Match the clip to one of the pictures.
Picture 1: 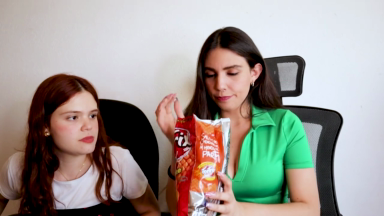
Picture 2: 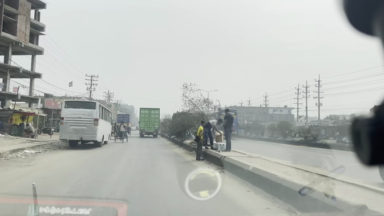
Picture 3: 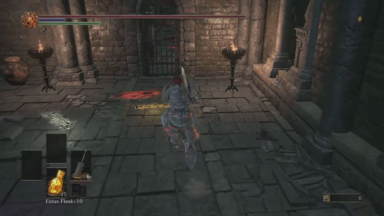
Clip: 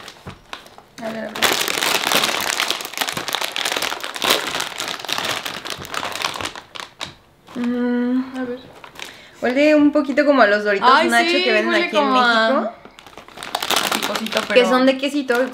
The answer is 1